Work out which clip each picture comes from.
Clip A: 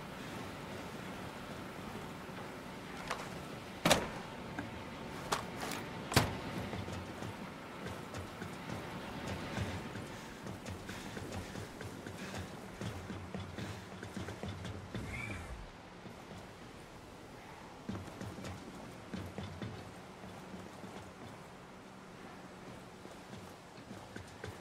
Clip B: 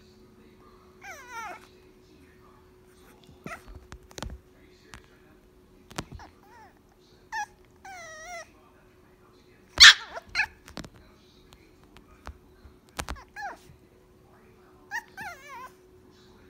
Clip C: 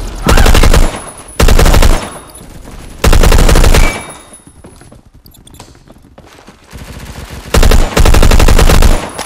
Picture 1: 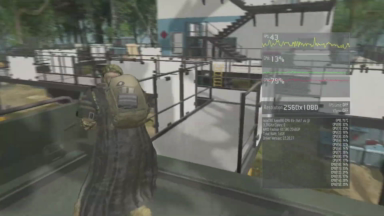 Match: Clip A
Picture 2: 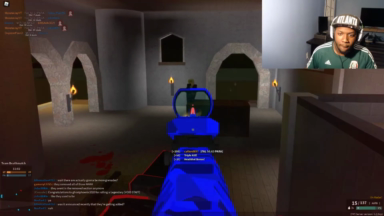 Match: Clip C